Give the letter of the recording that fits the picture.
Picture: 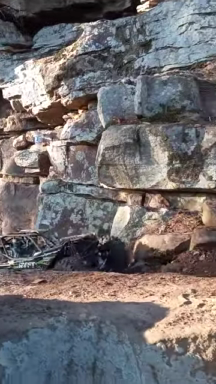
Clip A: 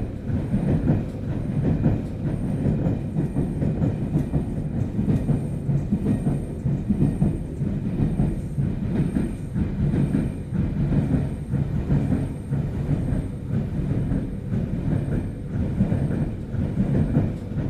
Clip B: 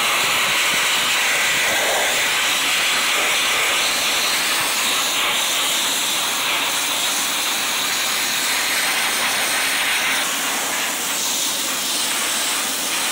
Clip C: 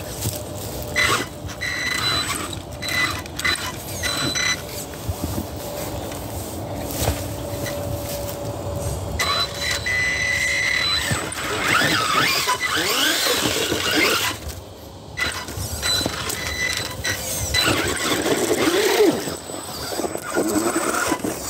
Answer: C